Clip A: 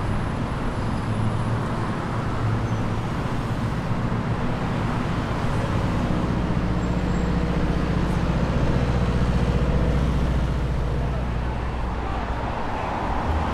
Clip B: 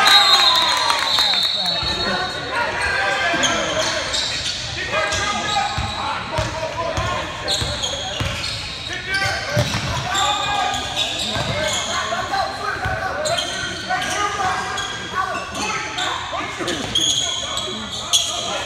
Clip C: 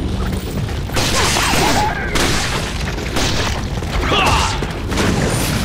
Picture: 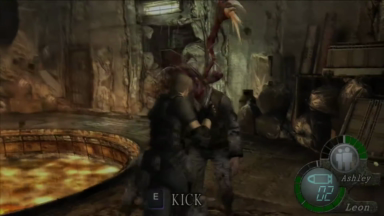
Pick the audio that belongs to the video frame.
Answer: C